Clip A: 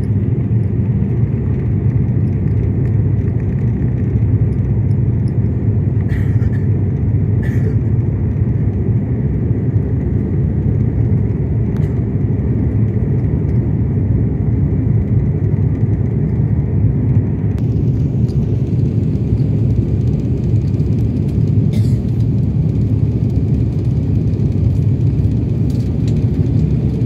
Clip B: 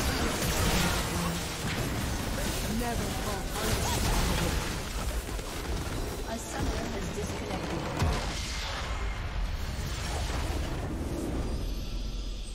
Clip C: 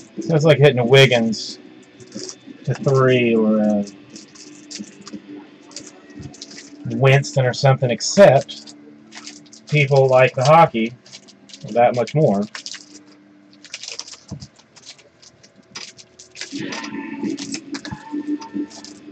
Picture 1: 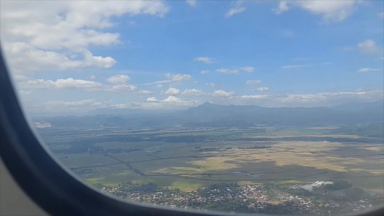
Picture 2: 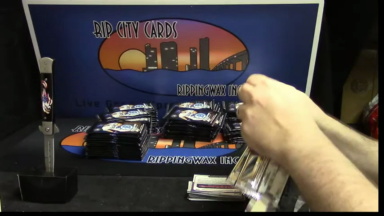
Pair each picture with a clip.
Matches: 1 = A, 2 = C